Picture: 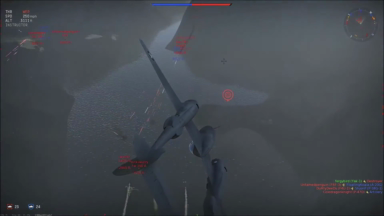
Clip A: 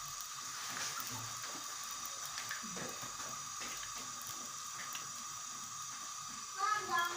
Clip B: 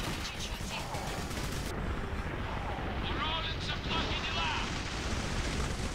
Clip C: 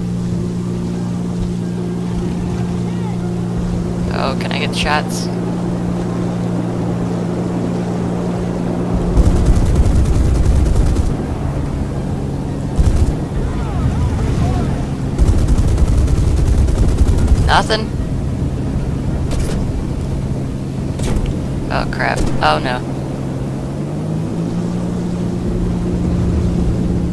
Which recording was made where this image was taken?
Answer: C